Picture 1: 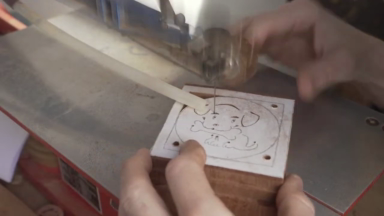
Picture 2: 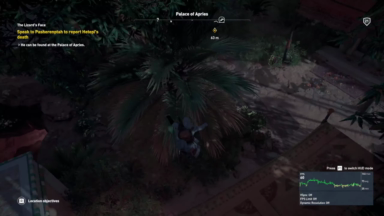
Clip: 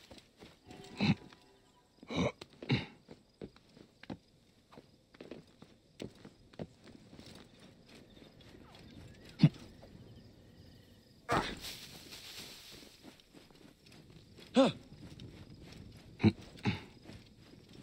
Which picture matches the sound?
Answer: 2